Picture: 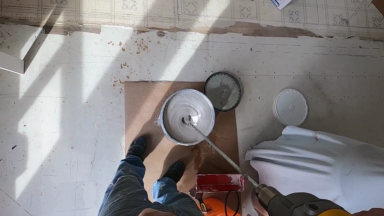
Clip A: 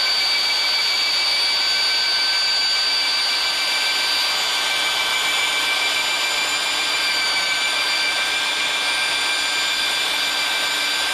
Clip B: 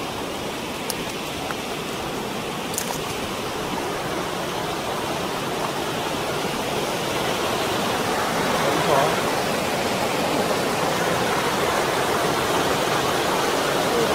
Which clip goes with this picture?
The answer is A